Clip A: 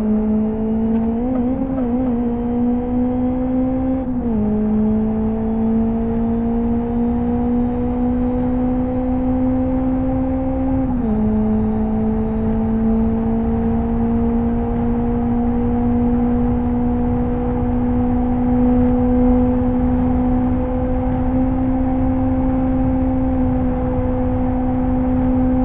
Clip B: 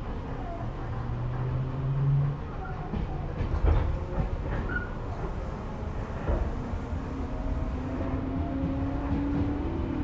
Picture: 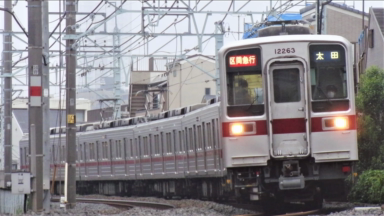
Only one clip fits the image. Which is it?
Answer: B